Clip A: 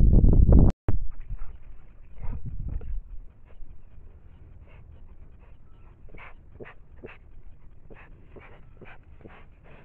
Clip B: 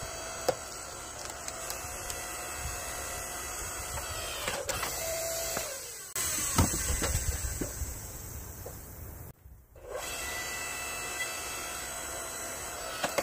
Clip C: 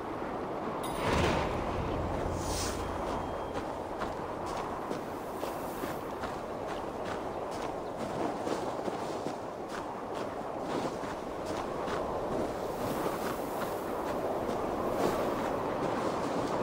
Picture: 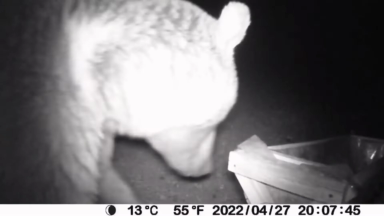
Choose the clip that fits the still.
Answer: A